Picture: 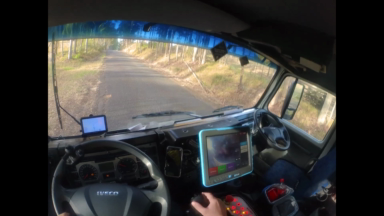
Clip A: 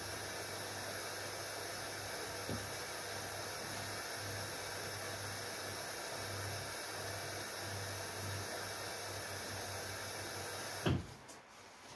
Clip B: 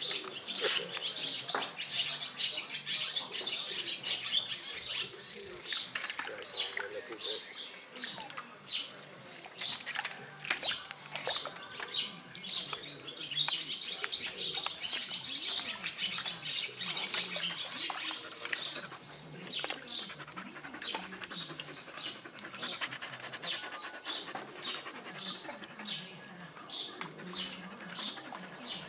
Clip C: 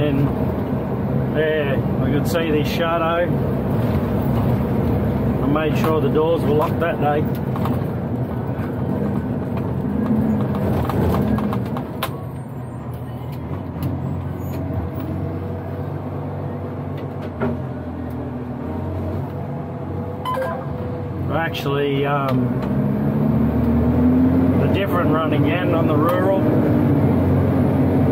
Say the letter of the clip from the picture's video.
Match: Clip C